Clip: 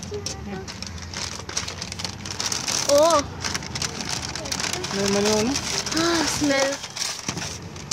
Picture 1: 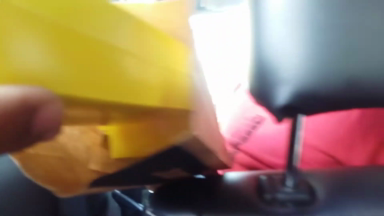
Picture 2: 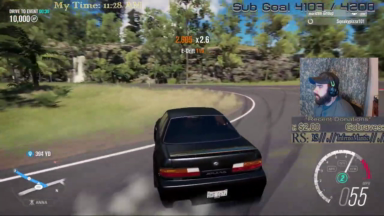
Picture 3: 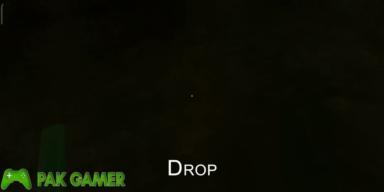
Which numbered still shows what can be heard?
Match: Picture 1